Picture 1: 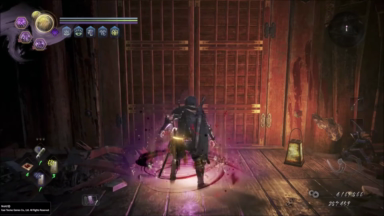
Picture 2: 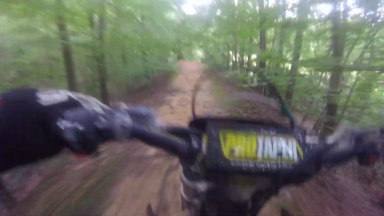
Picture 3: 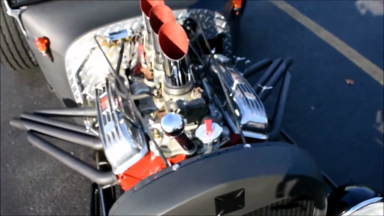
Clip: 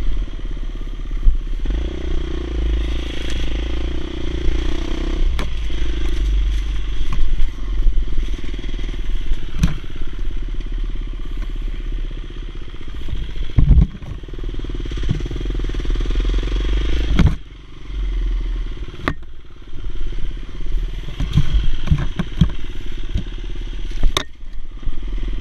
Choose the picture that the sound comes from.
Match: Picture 2